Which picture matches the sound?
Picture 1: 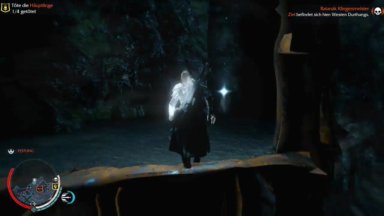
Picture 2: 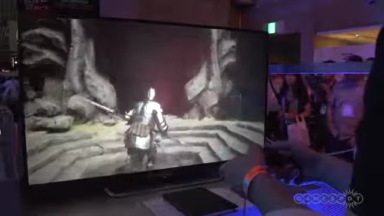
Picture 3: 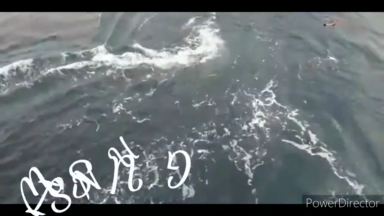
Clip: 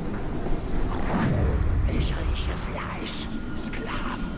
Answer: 1